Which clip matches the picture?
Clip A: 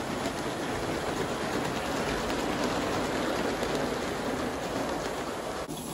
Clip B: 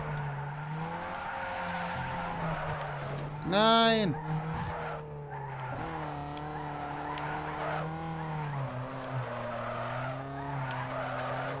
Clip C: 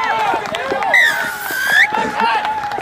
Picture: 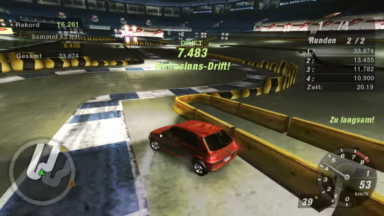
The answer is B